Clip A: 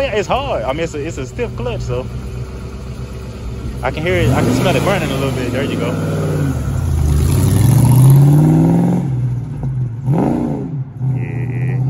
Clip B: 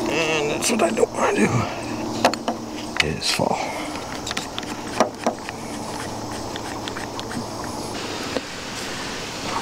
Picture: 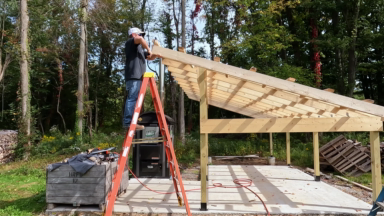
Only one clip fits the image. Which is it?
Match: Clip B